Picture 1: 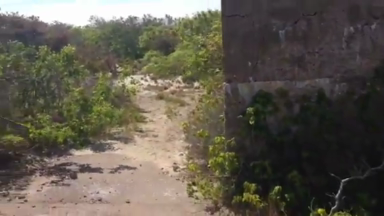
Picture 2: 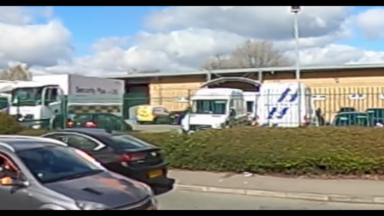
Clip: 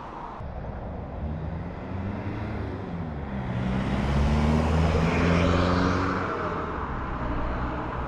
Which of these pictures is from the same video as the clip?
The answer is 2